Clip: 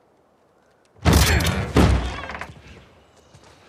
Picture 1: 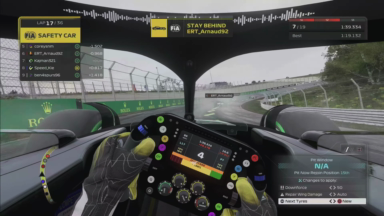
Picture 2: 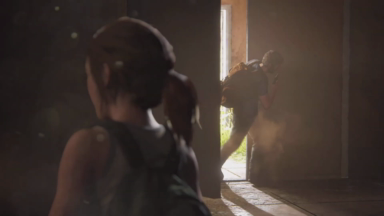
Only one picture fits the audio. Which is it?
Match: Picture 2